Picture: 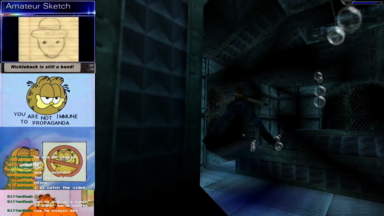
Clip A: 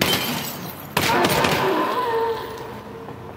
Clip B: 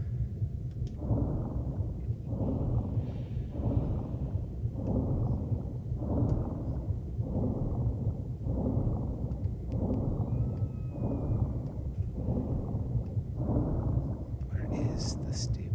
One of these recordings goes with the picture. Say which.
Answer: B